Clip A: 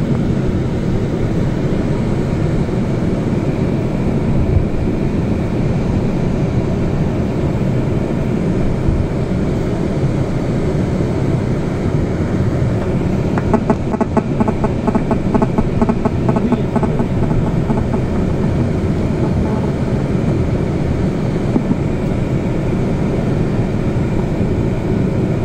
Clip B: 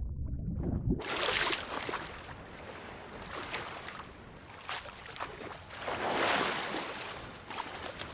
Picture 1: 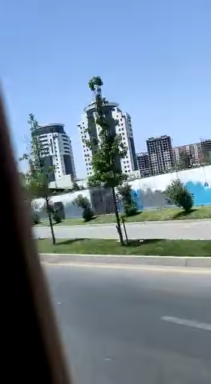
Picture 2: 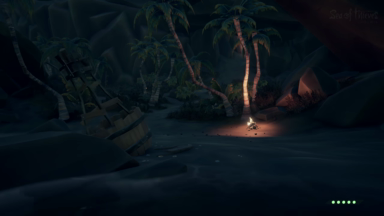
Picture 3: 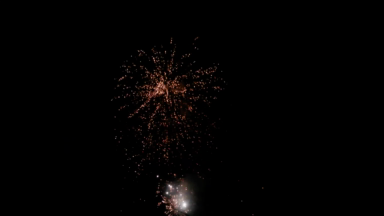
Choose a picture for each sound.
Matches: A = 1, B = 2